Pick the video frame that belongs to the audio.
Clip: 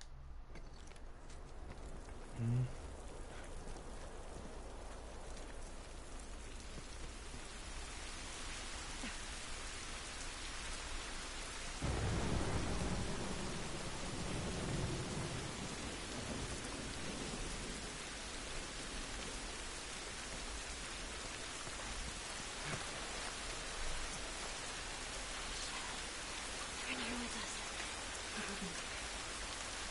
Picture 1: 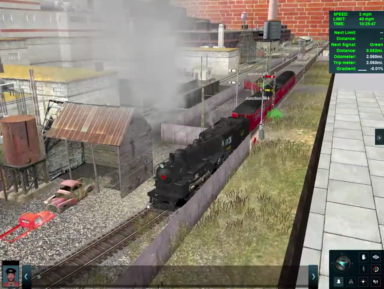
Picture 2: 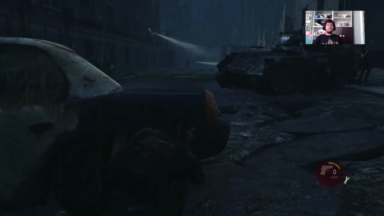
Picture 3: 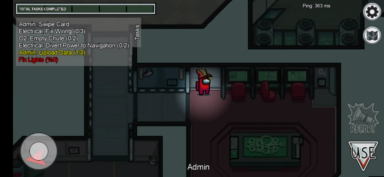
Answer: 2